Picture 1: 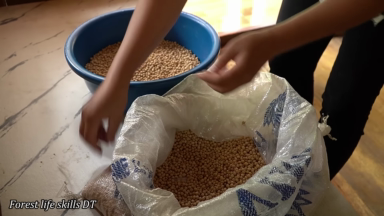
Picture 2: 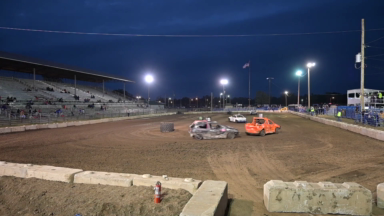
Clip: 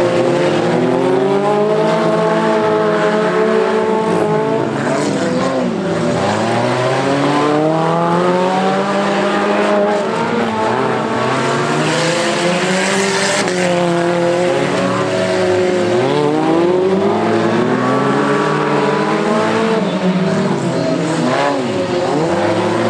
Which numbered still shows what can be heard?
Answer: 2